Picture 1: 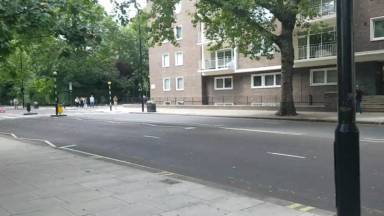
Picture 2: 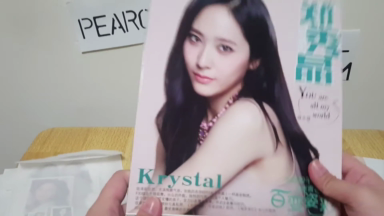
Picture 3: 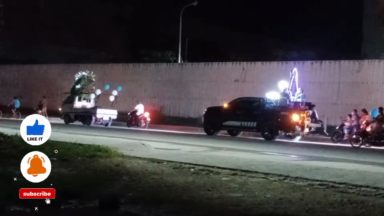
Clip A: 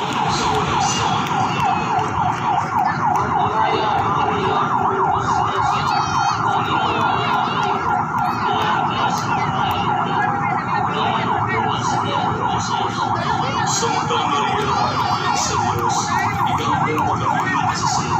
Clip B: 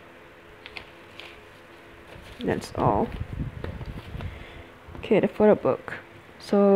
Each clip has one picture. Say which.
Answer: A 3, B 2